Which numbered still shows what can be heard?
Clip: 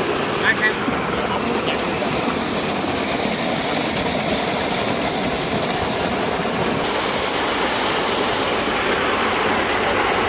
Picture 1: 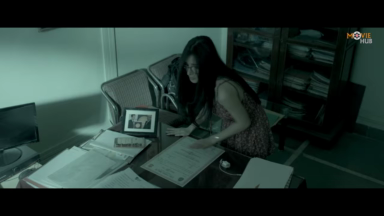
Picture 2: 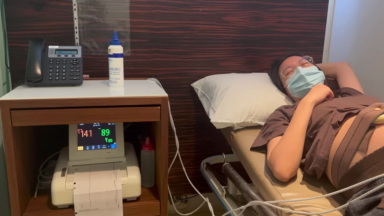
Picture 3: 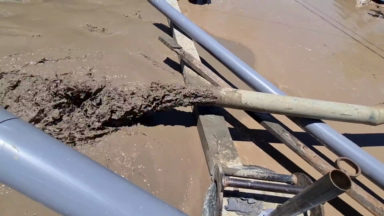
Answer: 3